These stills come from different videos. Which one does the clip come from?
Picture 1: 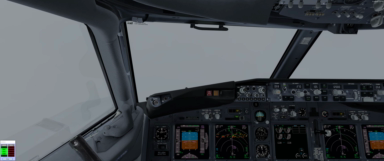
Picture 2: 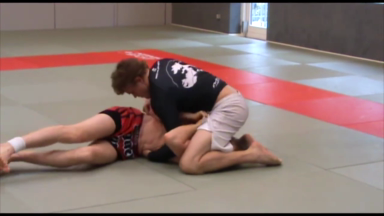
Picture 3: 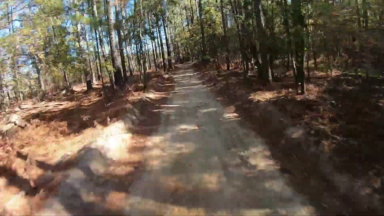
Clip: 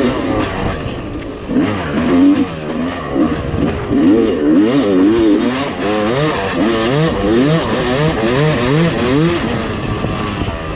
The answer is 3